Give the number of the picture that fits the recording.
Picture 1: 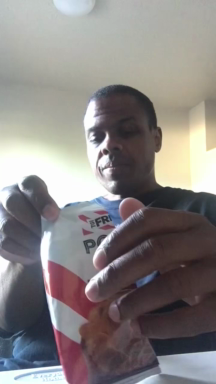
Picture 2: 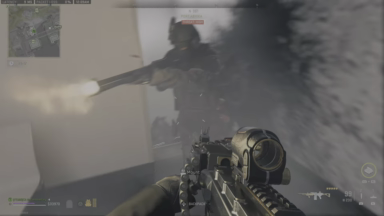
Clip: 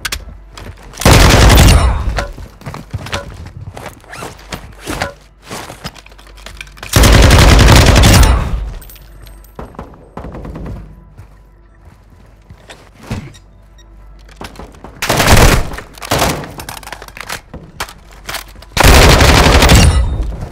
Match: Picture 2